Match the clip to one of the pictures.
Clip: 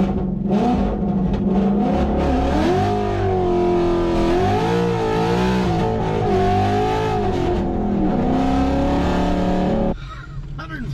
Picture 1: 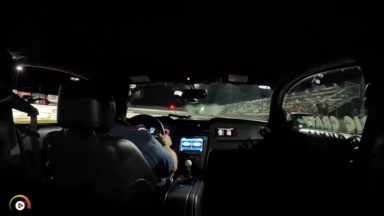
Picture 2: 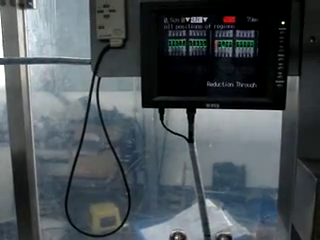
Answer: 1